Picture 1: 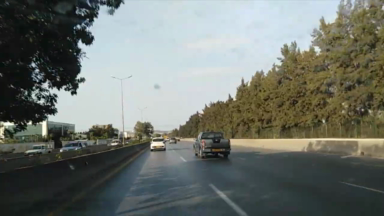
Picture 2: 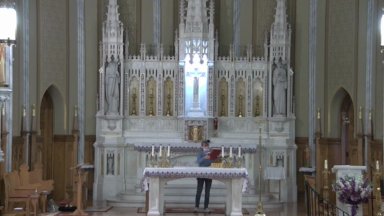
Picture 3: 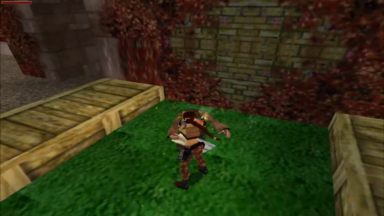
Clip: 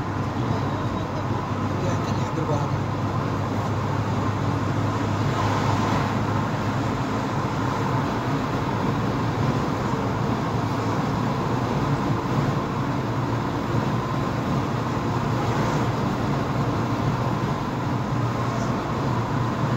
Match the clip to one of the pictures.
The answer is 1